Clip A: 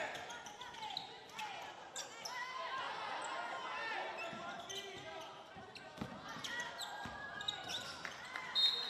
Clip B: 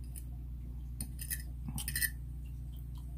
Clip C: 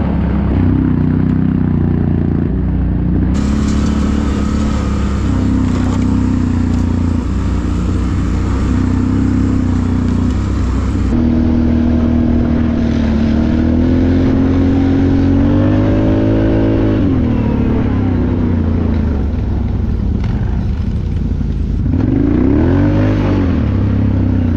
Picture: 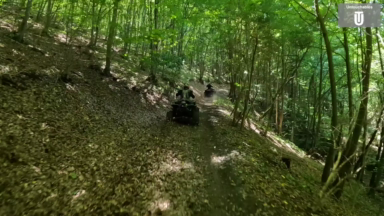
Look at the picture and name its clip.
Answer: C